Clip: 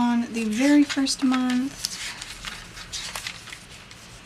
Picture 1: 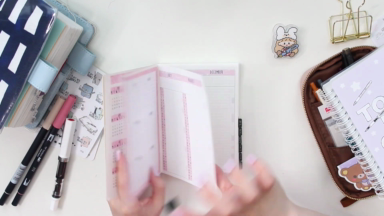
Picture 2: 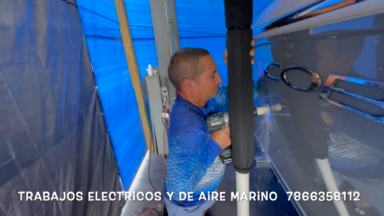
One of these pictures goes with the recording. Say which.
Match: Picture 1